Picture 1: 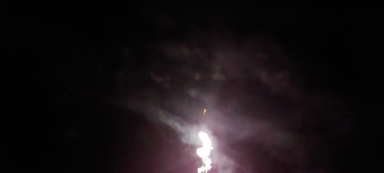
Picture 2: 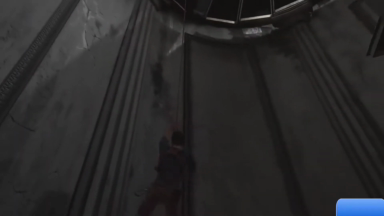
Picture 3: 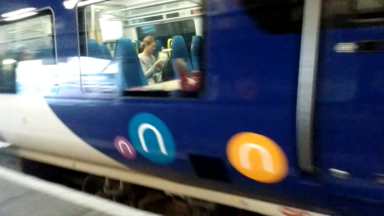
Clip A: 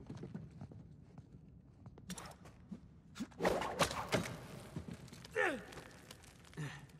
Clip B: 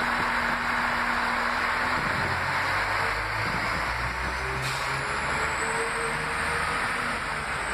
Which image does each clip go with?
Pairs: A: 2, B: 3